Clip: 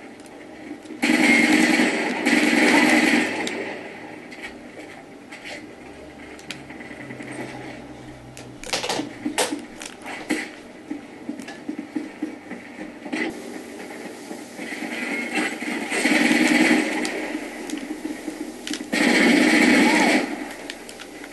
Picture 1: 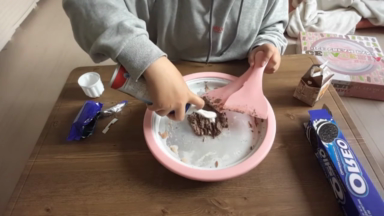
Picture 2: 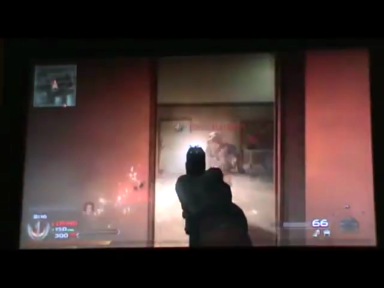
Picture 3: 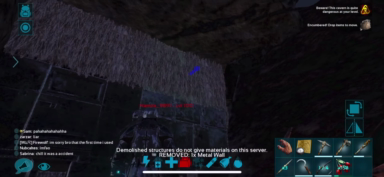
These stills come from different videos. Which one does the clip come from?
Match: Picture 2